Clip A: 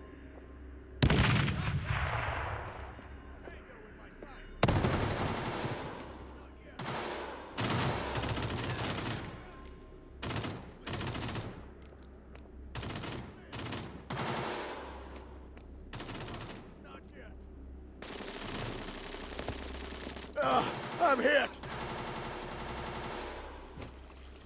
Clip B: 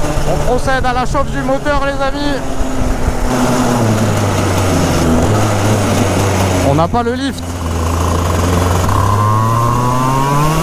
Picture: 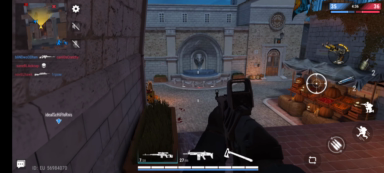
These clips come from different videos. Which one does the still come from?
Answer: A